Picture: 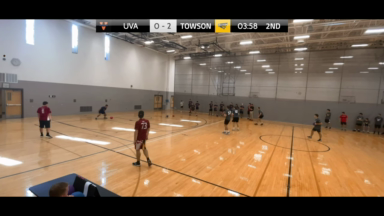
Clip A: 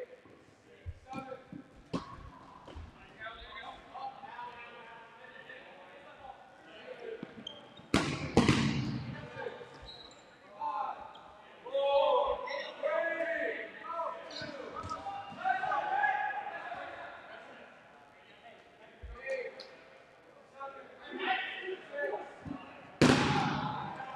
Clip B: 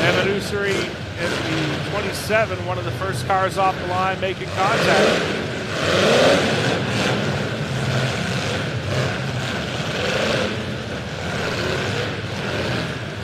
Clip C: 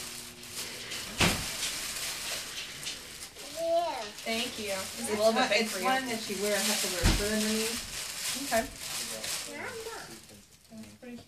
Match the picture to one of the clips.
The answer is A